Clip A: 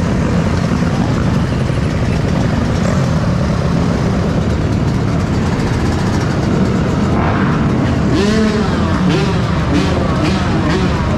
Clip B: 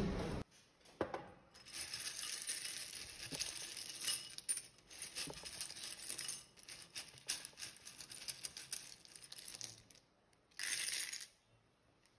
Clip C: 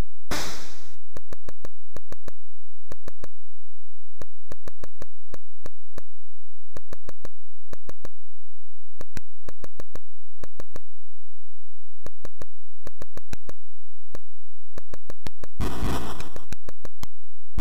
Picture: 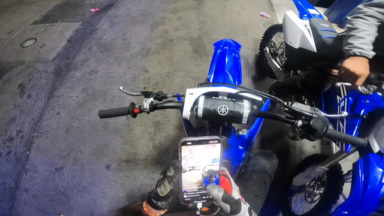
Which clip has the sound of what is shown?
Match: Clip A